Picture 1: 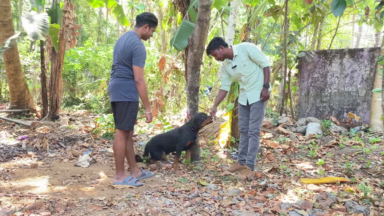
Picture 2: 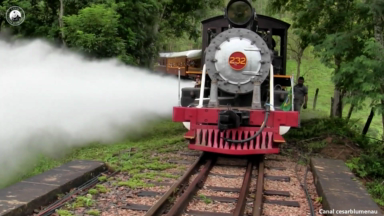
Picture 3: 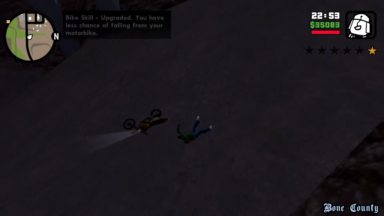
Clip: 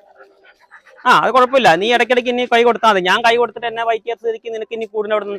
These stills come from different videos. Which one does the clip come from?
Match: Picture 1